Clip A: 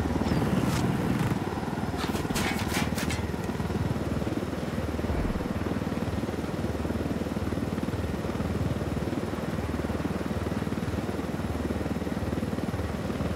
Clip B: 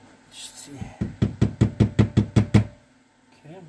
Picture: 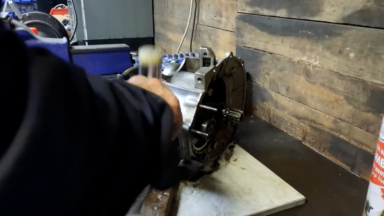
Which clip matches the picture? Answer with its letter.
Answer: B